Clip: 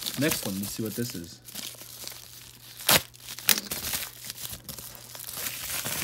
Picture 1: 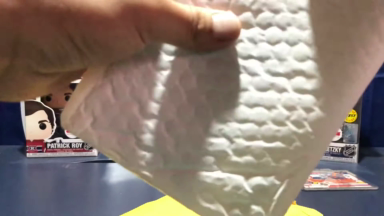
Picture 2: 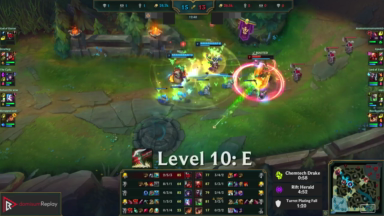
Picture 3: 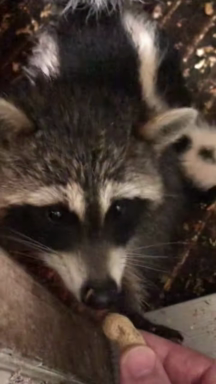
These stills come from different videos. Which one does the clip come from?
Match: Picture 1